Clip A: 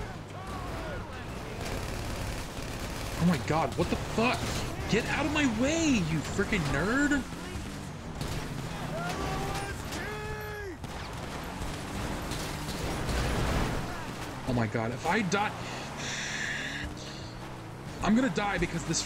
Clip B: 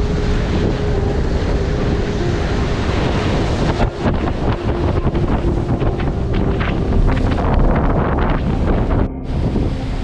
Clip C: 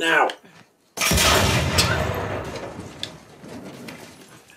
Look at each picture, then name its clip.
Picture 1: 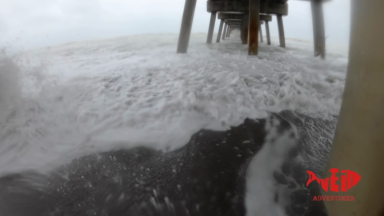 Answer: B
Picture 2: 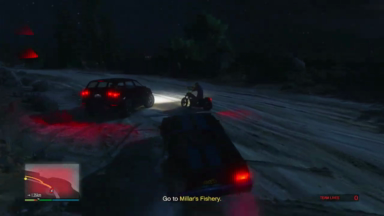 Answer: A